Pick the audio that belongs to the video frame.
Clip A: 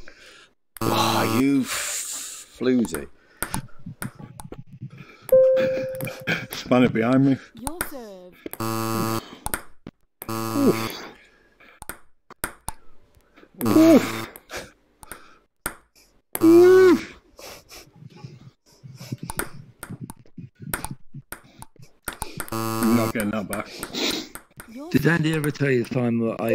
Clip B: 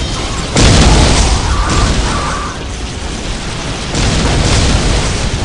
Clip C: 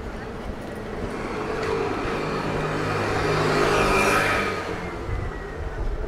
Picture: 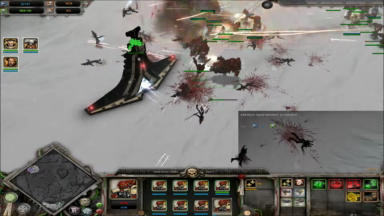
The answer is B